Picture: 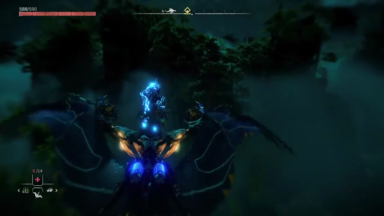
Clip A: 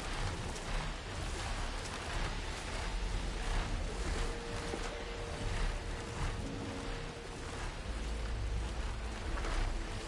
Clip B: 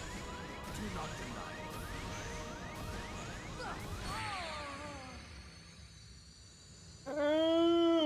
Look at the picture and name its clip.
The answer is A